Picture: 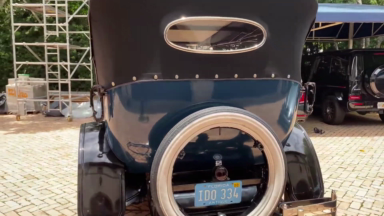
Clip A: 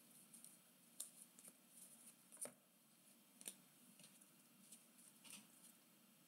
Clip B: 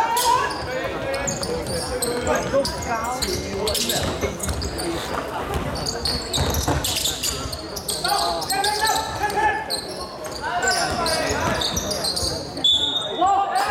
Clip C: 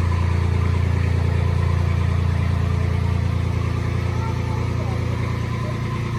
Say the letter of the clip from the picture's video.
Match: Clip C